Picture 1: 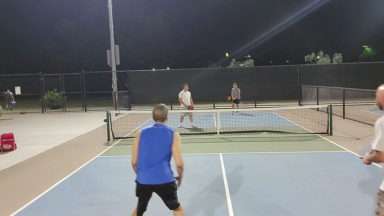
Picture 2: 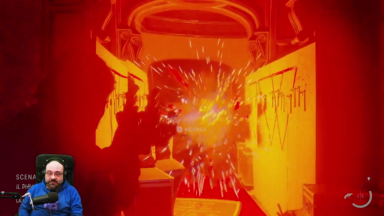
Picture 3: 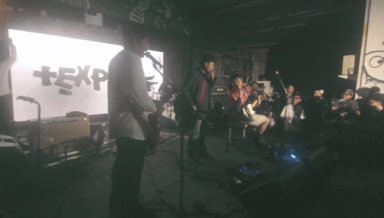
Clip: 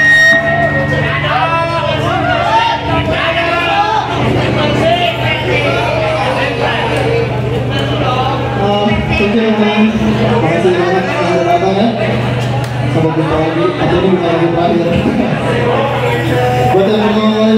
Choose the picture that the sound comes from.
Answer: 3